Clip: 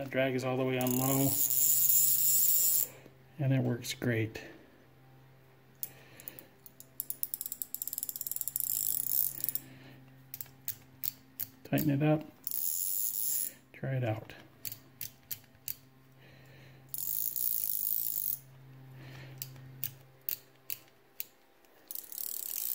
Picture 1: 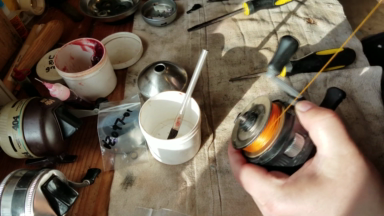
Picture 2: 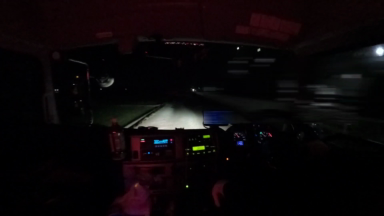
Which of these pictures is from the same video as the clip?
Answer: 1